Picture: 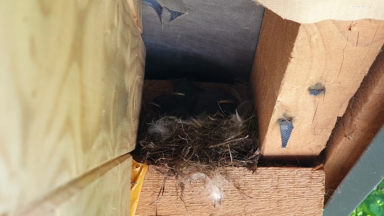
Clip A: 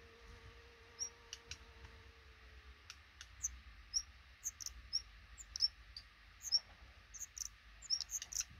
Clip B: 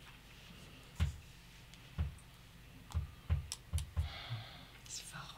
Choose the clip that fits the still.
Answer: A